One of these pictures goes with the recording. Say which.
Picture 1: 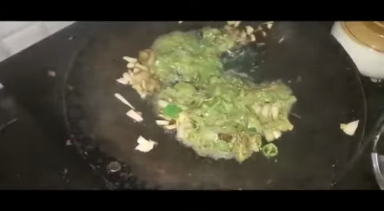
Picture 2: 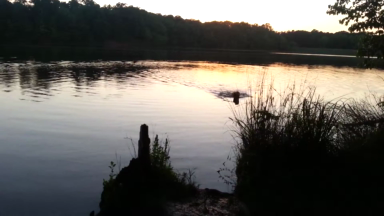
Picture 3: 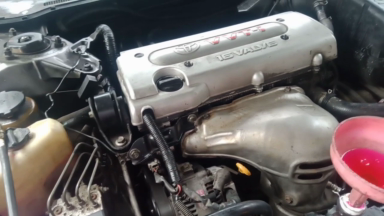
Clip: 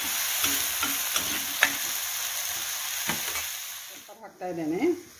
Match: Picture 1